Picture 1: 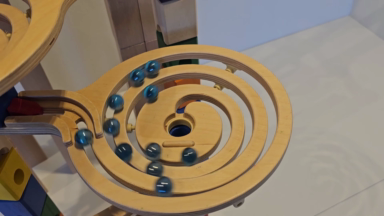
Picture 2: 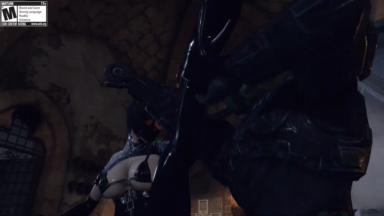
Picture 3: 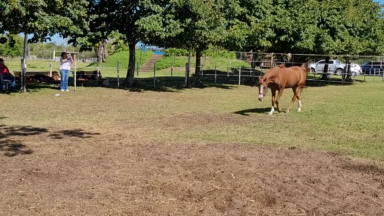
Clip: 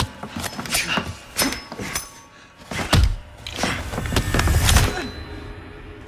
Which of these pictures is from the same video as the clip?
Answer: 2